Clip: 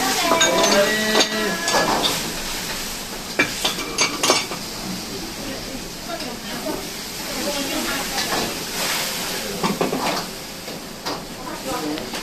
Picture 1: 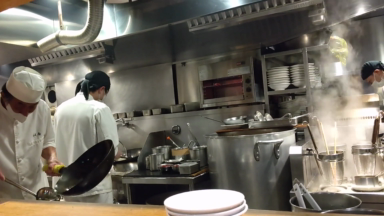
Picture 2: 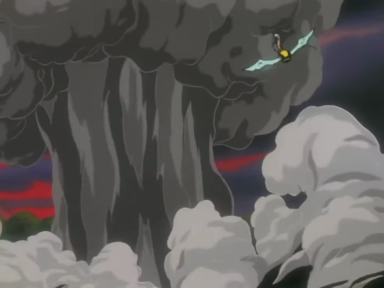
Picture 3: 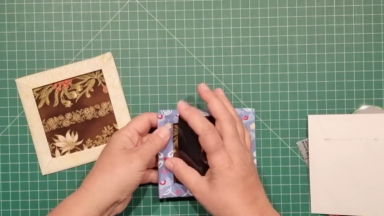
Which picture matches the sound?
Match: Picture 1